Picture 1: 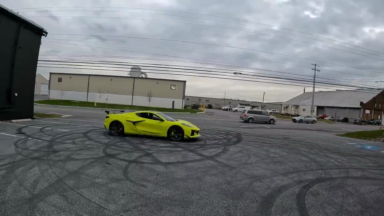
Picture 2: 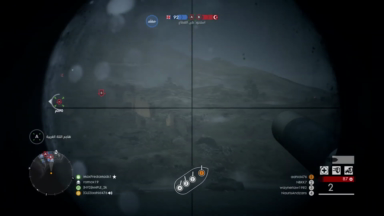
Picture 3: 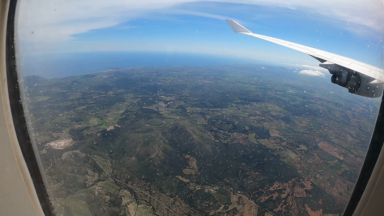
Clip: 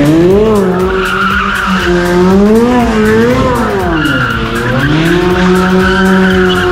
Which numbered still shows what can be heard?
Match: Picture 1